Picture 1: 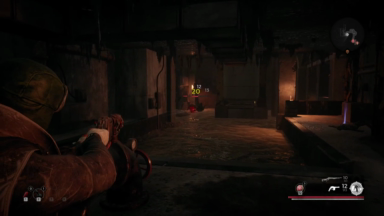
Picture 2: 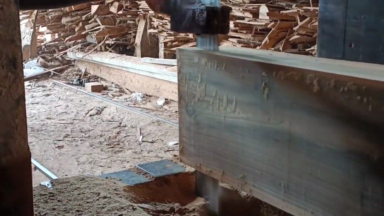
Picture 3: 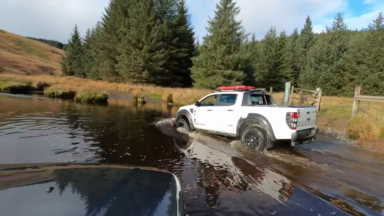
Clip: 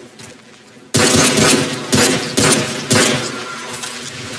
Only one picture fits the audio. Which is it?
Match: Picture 1